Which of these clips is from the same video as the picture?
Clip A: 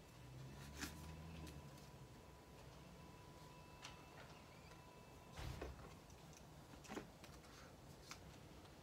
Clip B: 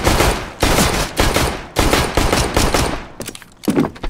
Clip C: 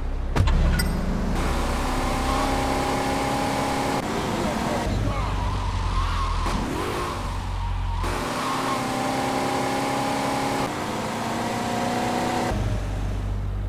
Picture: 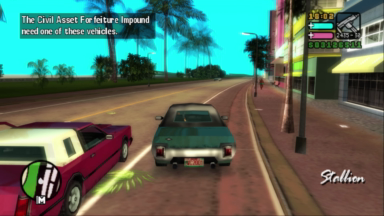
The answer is C